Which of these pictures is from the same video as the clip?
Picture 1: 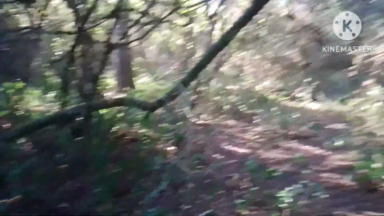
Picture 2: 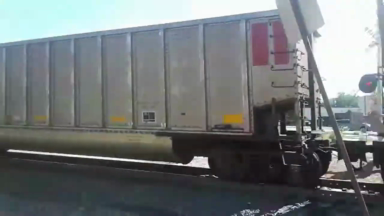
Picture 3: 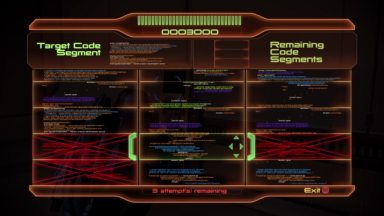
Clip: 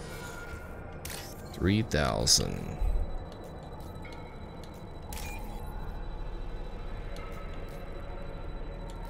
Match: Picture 3